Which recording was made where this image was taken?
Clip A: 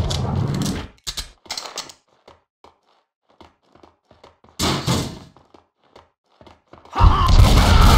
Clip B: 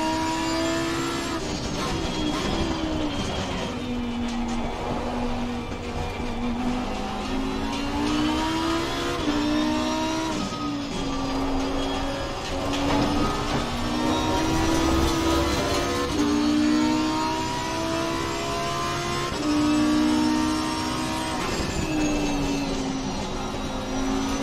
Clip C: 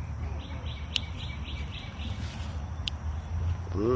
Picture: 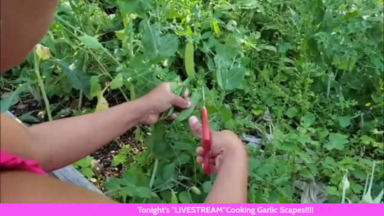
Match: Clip C